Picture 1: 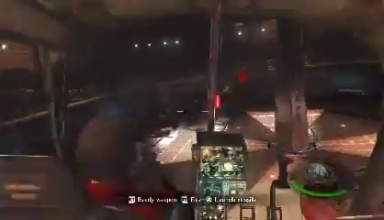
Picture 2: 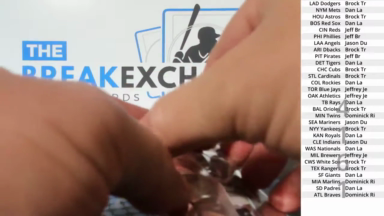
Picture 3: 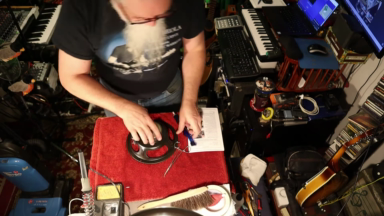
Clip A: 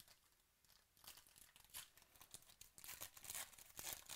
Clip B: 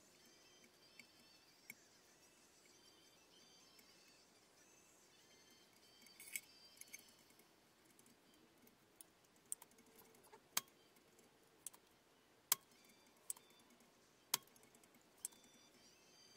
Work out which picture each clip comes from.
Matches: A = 2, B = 3